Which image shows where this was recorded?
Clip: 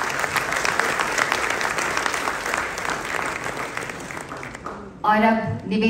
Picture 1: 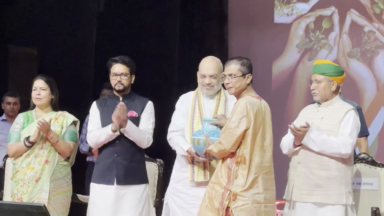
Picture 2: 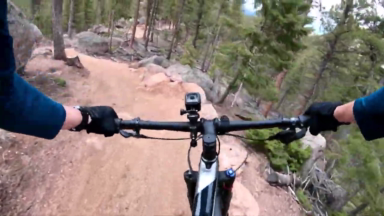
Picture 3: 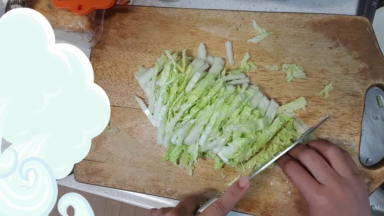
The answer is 1